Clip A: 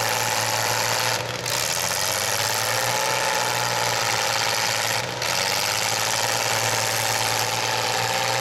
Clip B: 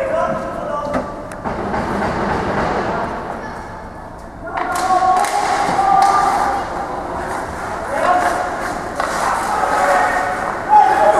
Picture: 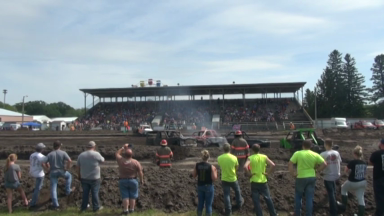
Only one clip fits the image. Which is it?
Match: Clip A